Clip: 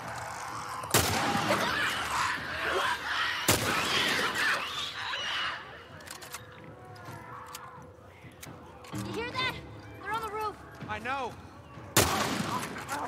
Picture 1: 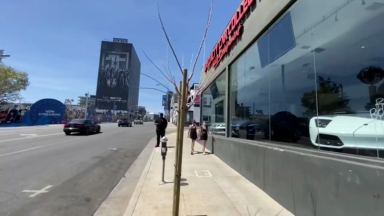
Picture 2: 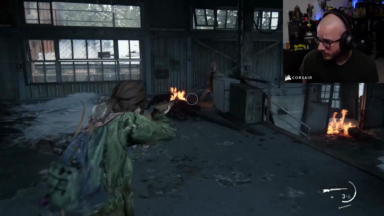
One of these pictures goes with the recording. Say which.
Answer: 2